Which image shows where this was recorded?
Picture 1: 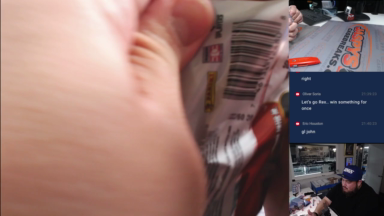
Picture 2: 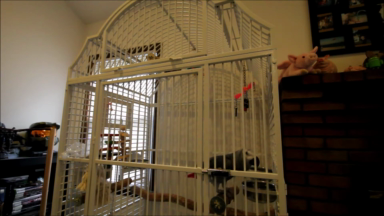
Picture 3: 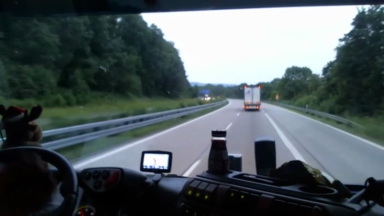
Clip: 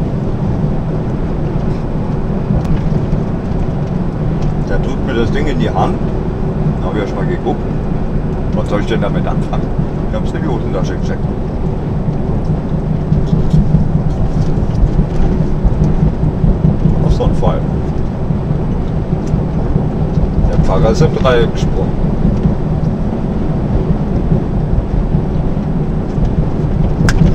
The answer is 3